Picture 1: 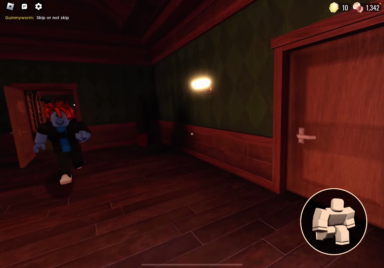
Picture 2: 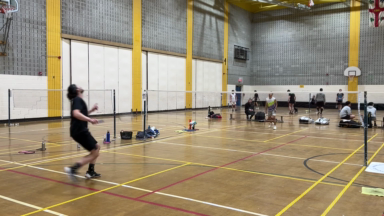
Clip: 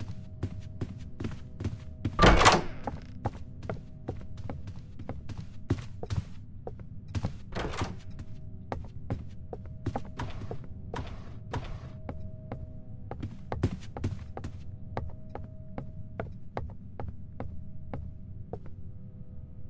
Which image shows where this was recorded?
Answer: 1